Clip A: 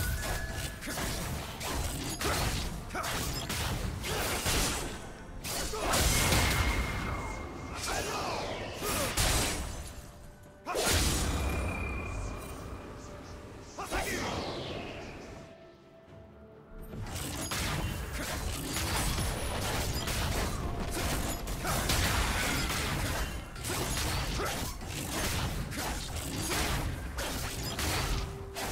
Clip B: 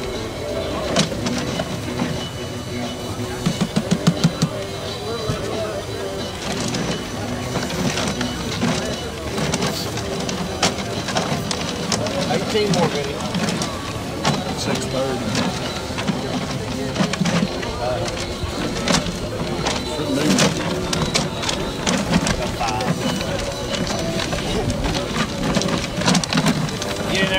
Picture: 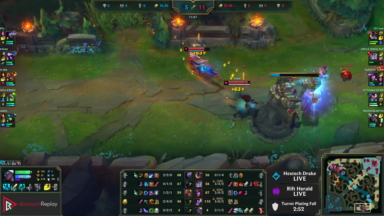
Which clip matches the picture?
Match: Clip A